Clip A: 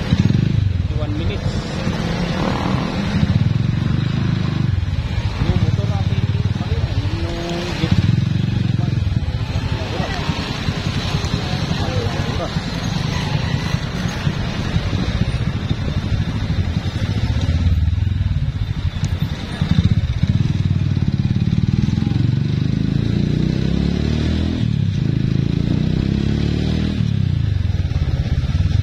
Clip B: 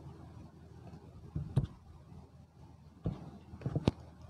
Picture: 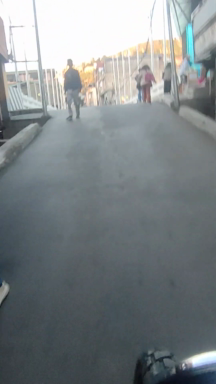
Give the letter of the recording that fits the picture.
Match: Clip A